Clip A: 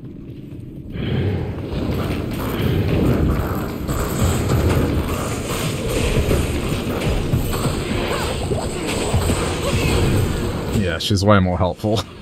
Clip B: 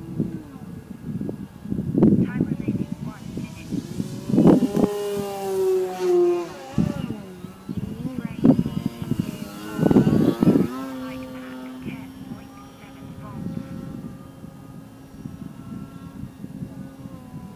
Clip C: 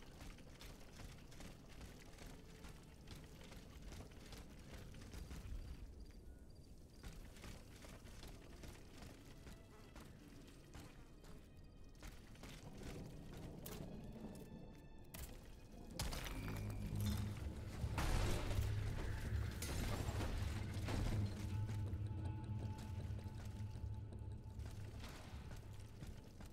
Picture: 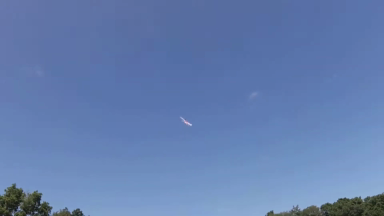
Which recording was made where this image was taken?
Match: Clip B